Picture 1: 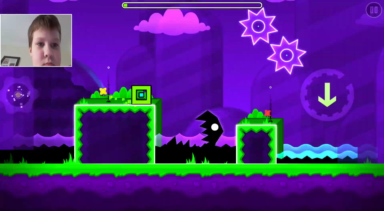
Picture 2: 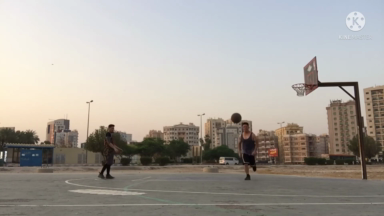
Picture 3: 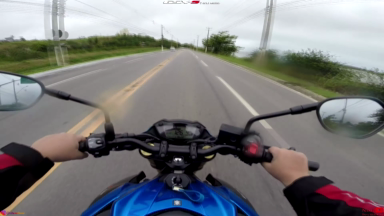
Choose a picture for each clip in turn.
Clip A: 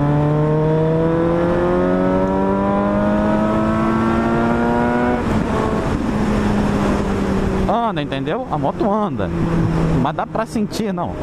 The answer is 3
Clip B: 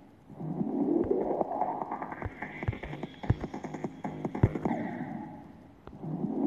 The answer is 1